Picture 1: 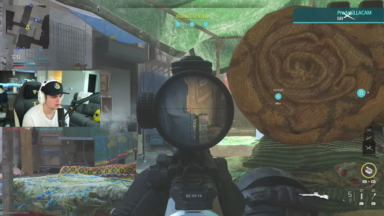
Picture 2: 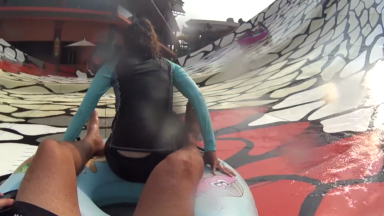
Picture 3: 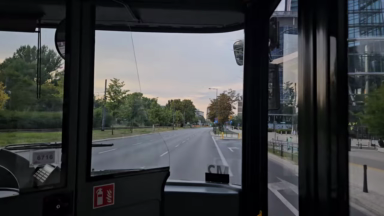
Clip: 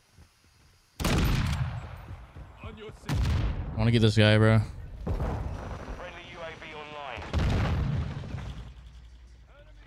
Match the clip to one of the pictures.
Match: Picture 1